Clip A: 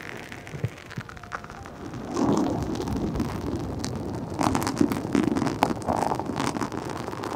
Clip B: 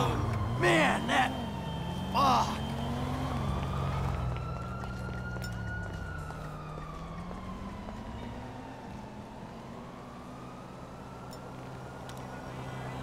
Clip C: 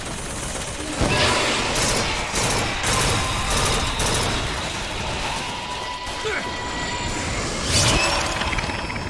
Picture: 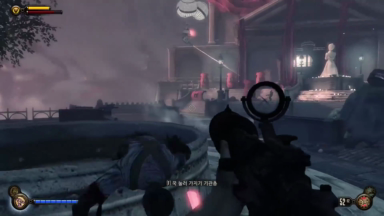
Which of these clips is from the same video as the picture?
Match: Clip C